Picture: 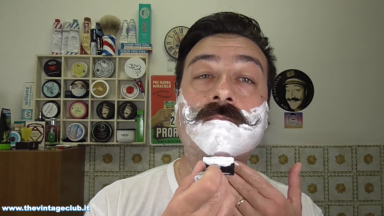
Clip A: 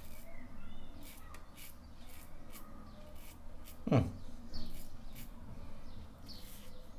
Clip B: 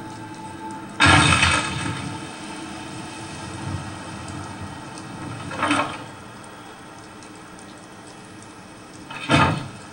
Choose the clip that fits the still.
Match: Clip A